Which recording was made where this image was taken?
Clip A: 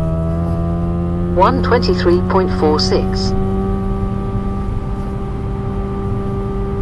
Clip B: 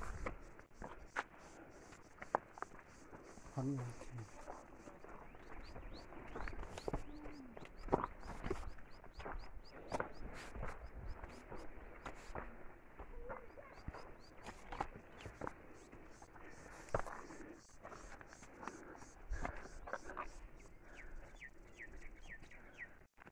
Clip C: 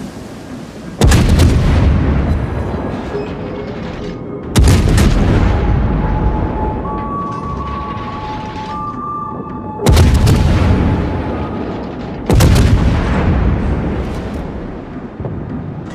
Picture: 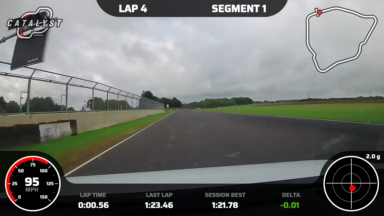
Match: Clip A